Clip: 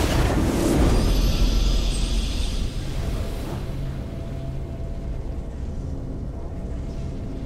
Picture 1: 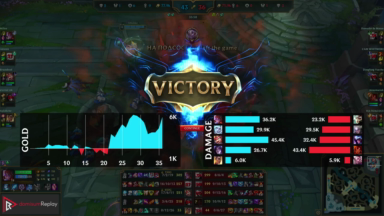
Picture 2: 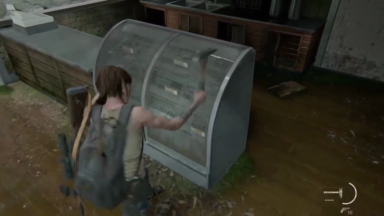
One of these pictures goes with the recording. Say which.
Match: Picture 1